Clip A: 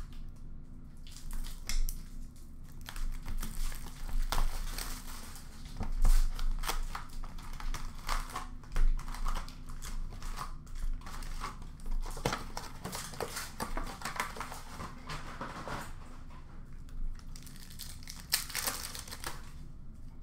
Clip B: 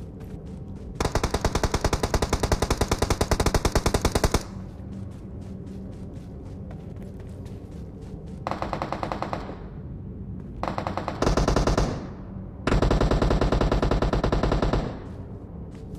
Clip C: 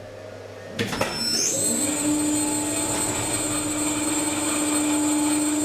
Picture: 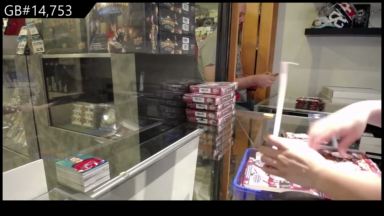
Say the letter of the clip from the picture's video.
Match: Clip A